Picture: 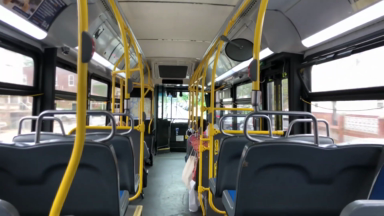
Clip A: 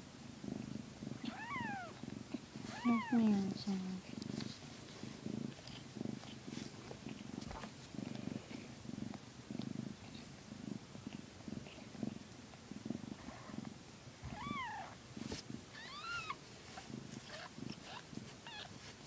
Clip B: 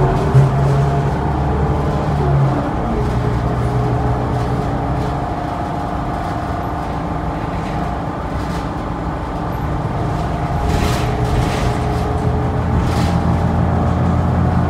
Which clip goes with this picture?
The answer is B